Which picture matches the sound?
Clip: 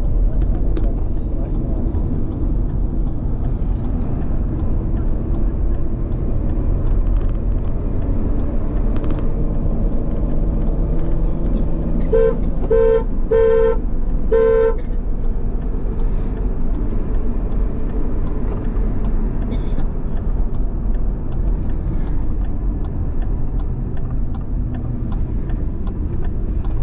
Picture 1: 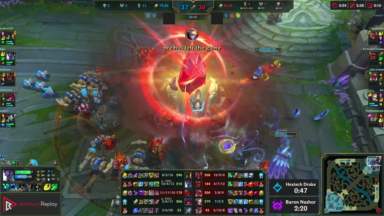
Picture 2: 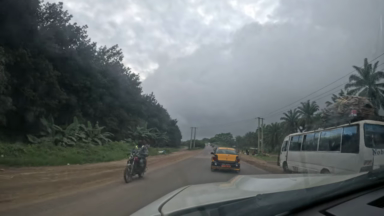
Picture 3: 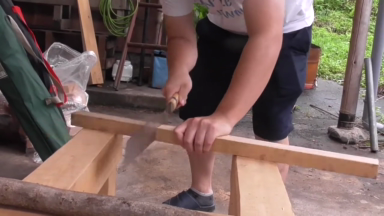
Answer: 2